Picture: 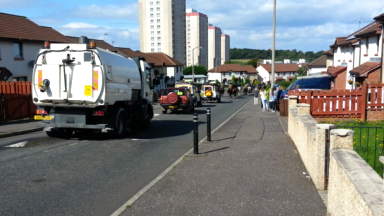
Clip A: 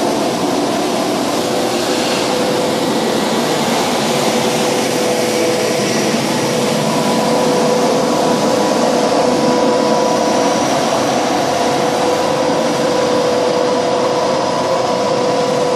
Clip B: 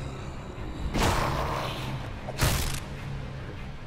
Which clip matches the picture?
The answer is A